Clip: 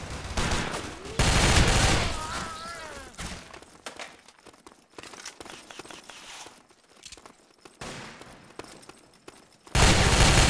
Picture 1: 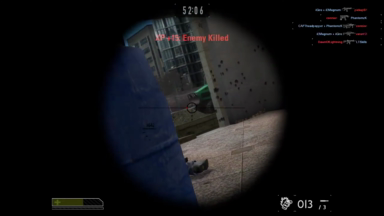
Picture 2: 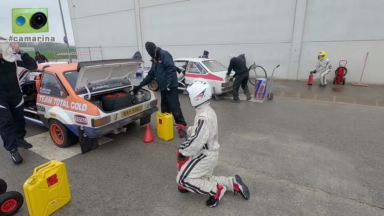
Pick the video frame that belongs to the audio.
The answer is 1